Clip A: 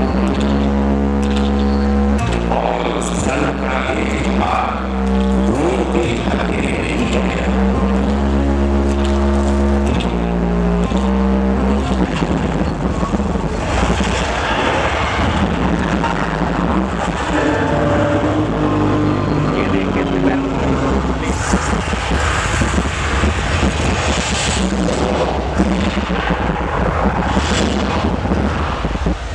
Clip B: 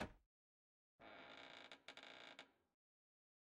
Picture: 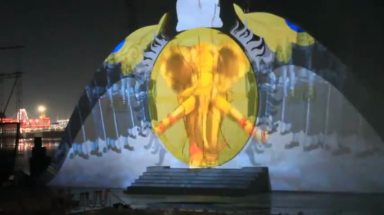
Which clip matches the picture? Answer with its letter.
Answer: A